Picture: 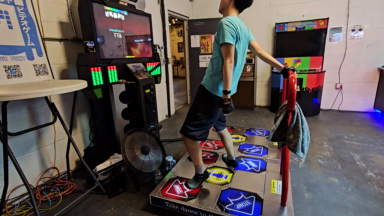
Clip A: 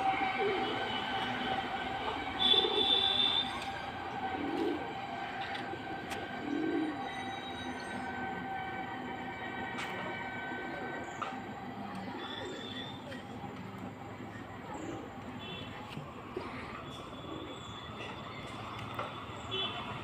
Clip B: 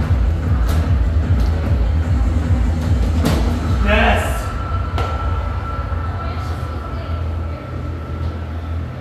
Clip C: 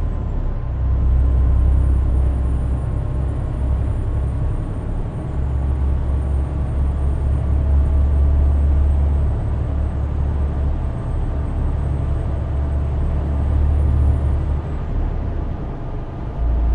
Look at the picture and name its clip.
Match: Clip B